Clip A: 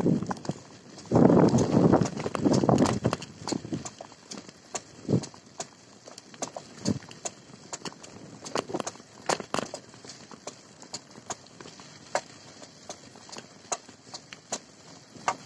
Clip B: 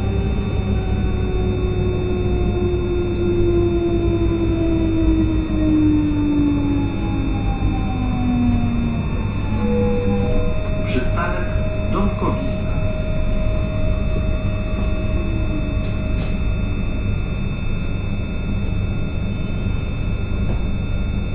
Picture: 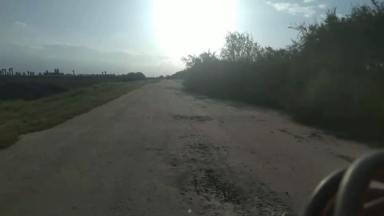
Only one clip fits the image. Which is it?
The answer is A